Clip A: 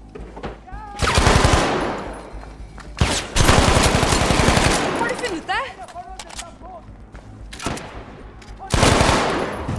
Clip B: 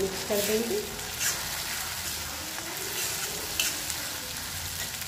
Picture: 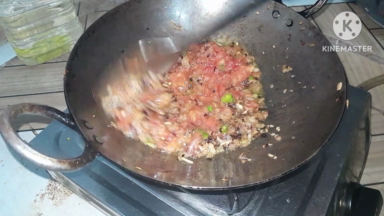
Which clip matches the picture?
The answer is B